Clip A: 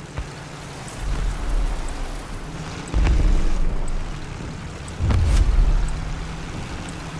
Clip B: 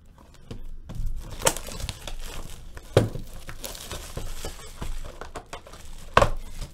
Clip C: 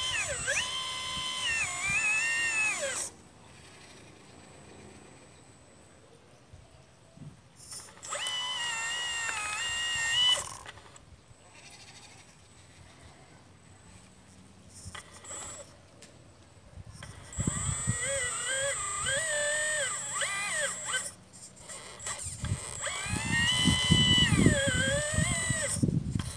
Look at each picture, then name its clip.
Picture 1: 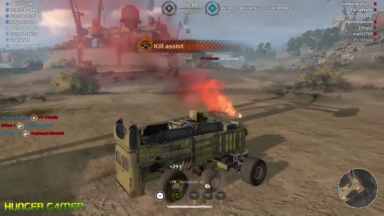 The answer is A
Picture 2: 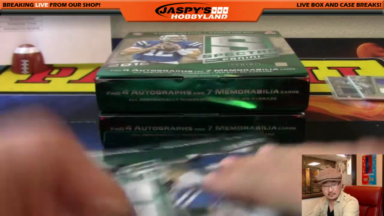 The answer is B